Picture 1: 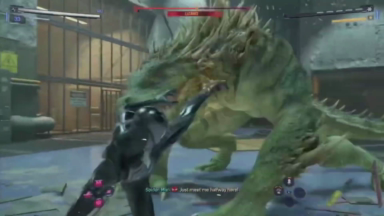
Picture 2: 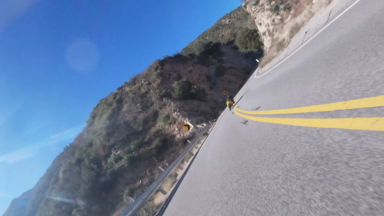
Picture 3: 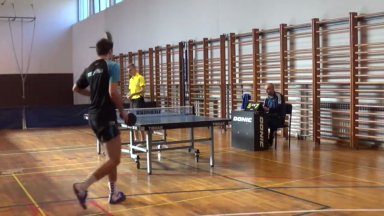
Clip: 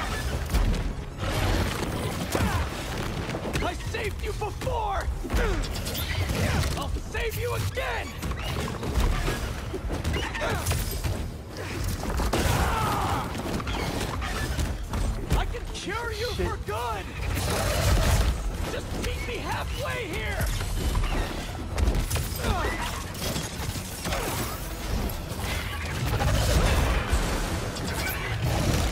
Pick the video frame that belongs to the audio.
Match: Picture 1